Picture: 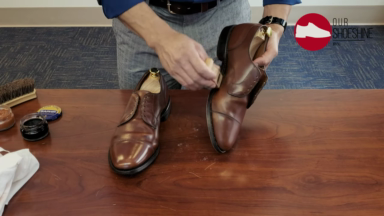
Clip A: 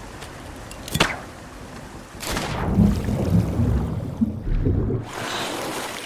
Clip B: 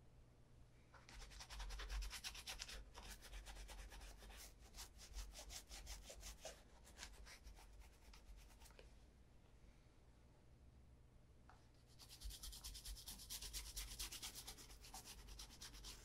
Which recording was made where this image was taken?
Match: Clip B